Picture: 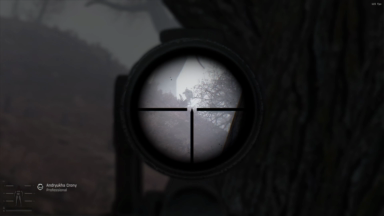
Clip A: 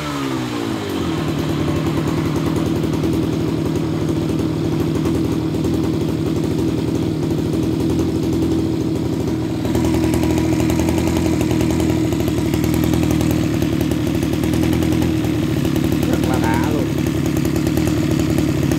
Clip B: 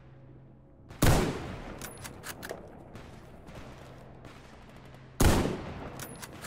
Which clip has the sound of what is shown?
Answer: B